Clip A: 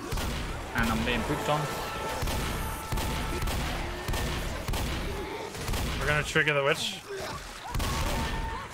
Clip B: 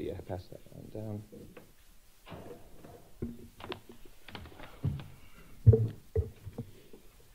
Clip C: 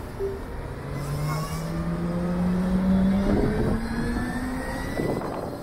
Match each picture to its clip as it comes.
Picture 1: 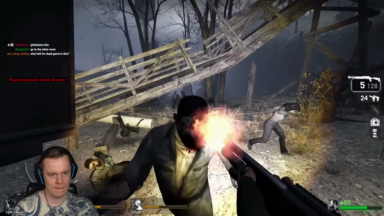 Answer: A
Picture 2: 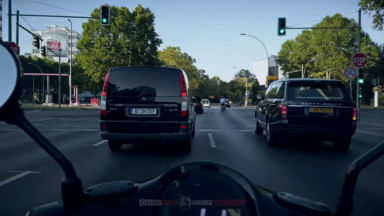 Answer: C